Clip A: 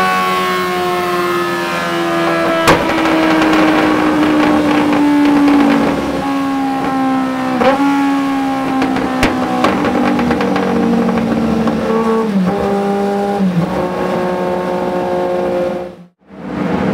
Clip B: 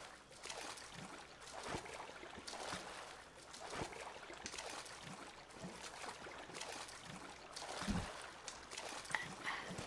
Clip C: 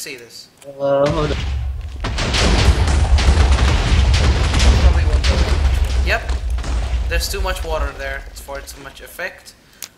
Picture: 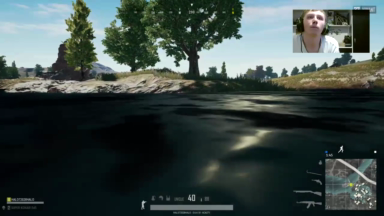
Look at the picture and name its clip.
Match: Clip B